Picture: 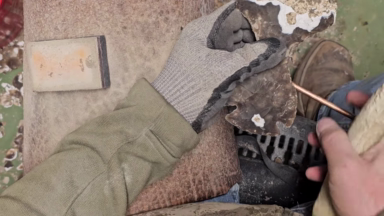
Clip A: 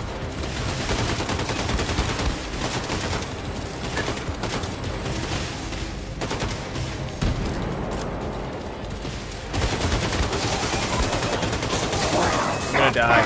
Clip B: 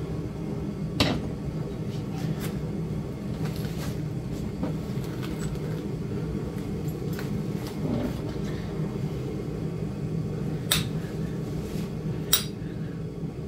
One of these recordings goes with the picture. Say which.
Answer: B